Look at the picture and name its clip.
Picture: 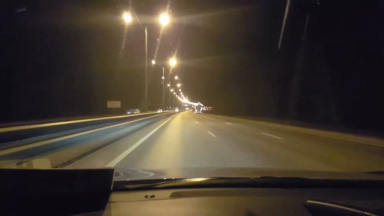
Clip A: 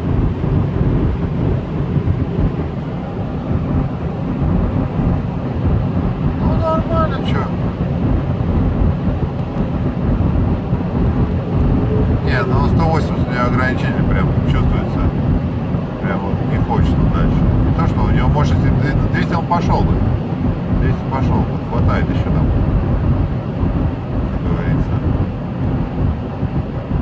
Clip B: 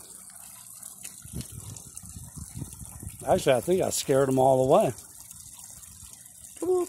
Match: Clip A